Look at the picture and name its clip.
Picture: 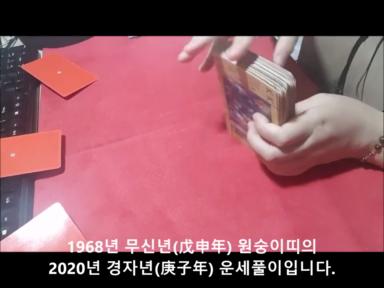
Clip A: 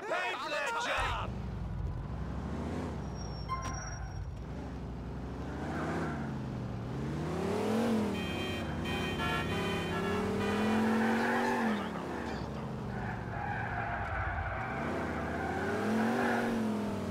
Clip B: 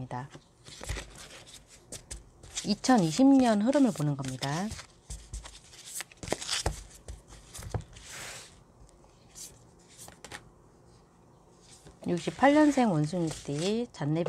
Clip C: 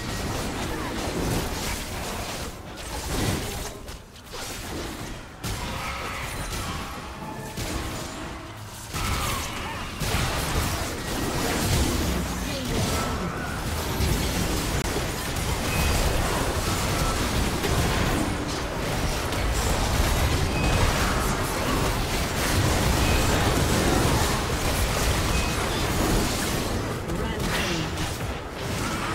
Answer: B